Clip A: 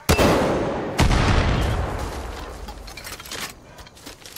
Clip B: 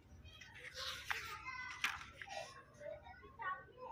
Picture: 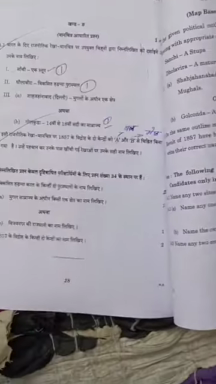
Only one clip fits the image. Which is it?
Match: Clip B